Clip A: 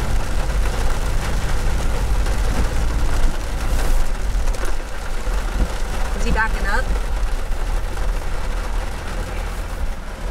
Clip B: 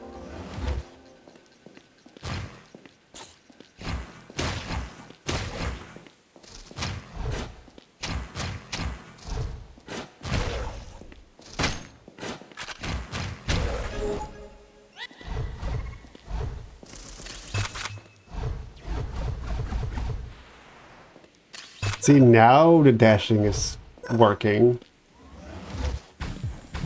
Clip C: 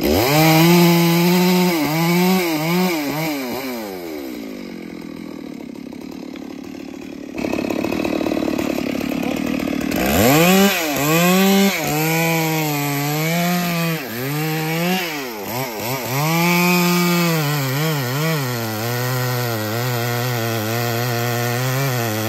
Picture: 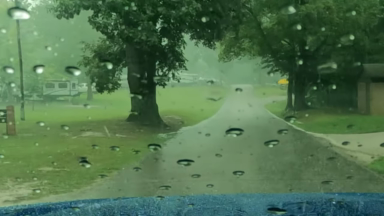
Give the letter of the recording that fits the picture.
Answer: A